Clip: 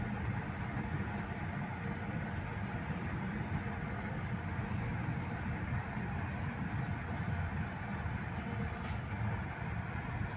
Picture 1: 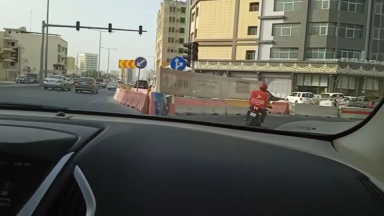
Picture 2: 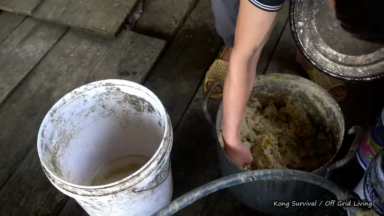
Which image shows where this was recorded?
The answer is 1